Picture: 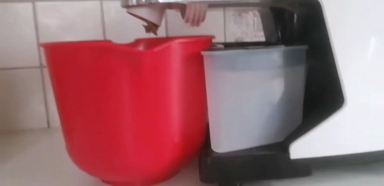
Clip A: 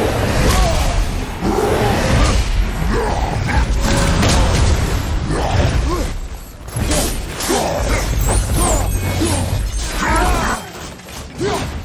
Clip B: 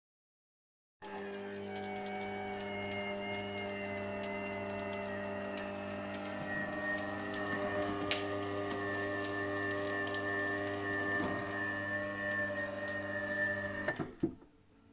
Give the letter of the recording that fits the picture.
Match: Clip B